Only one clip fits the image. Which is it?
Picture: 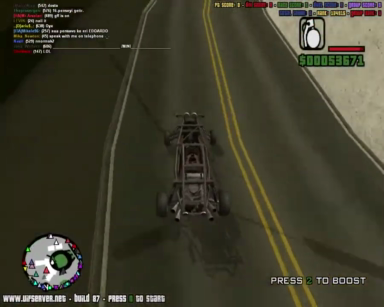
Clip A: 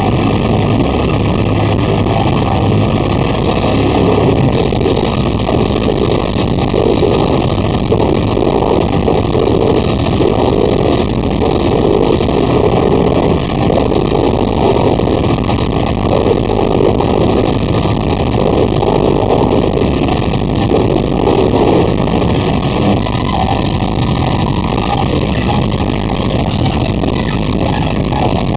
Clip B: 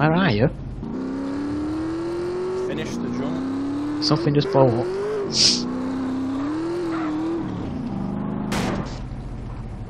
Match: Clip B